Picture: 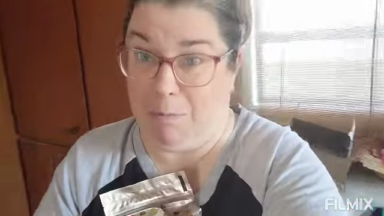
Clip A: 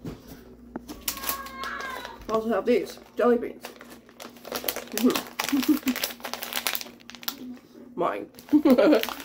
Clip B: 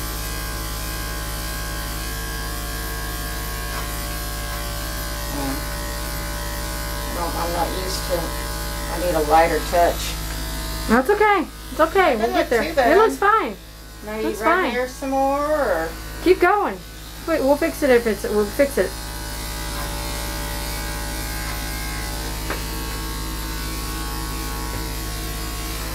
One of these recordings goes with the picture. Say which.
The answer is A